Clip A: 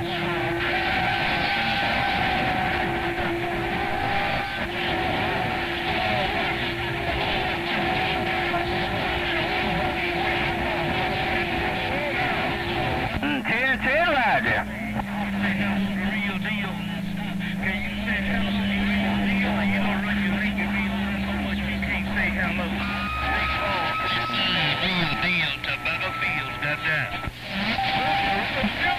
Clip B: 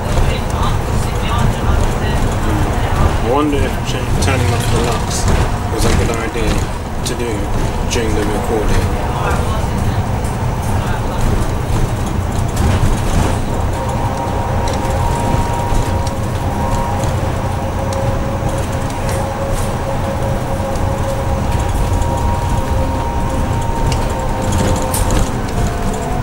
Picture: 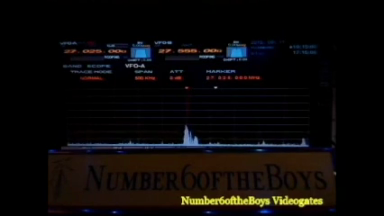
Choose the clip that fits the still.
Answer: A